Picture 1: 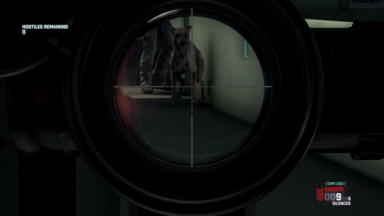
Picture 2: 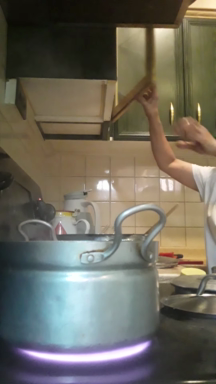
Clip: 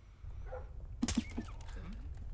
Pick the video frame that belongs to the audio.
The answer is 1